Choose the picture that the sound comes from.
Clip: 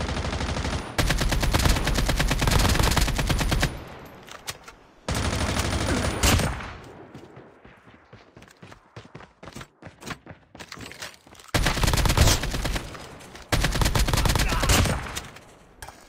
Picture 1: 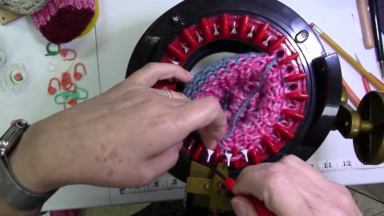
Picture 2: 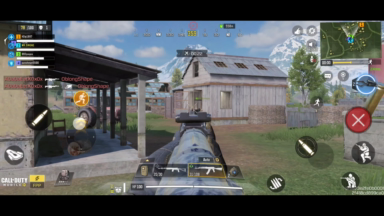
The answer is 2